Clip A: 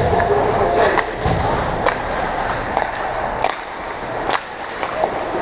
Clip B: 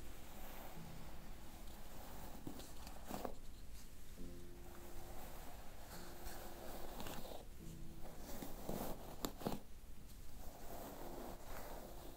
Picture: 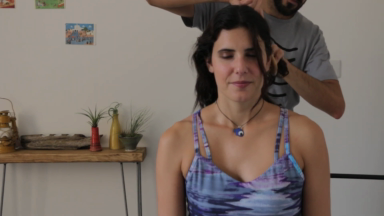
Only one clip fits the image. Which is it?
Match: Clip B